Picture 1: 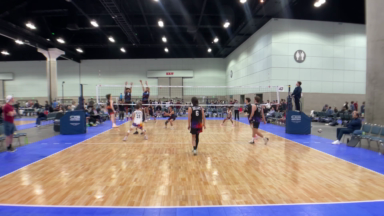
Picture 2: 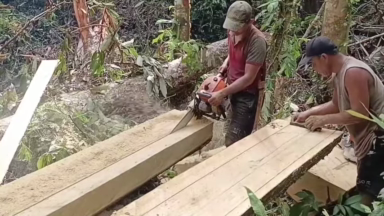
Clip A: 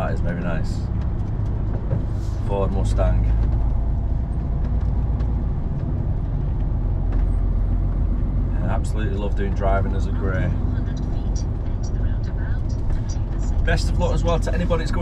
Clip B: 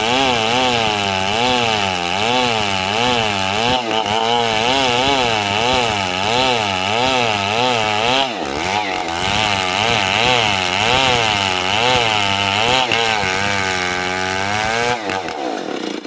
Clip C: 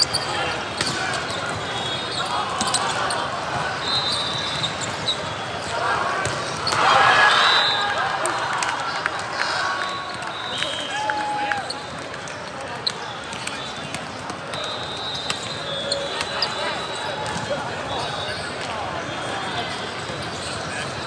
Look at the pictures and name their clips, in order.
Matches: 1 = C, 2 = B